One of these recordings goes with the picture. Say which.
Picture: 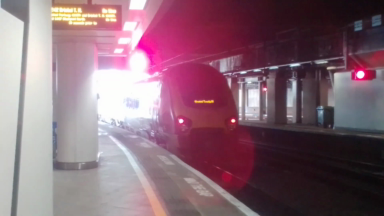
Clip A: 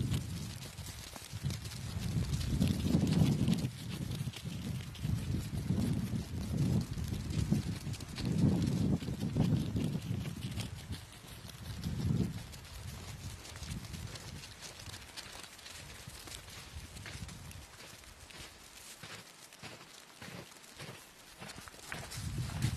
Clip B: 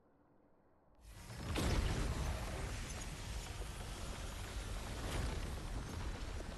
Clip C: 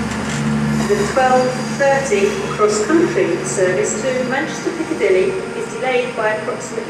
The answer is C